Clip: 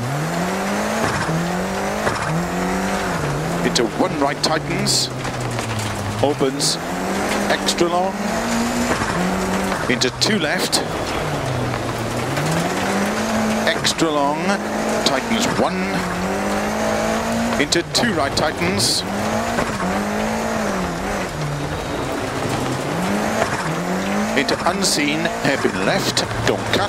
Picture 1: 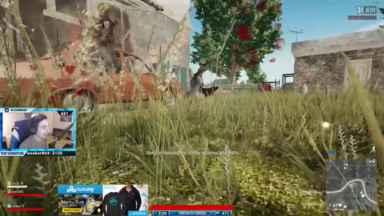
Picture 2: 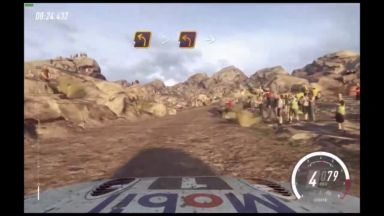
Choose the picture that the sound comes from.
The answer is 2